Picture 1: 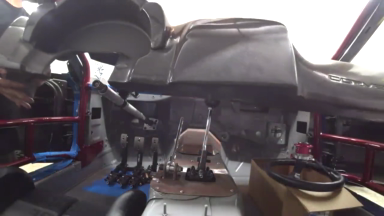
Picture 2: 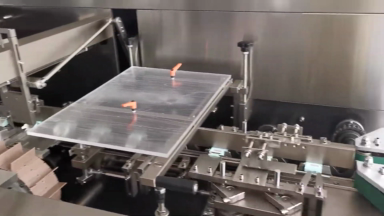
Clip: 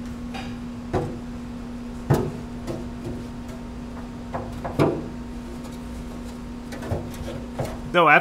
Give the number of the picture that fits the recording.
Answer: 1